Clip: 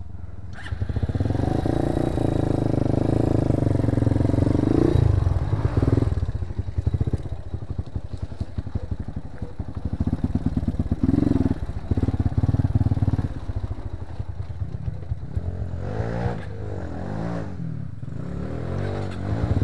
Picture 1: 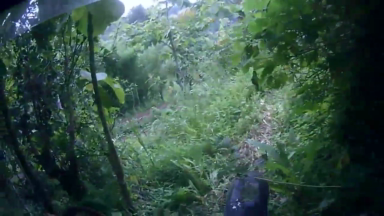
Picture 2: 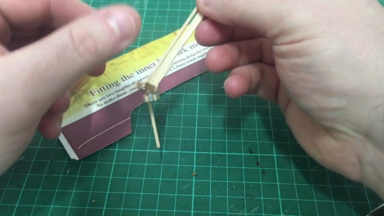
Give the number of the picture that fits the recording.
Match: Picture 1